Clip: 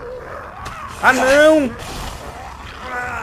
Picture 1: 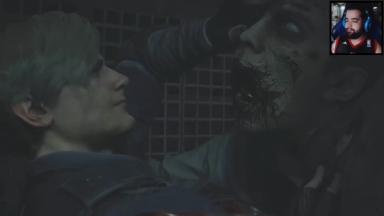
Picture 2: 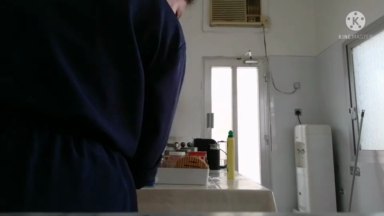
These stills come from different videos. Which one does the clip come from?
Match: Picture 1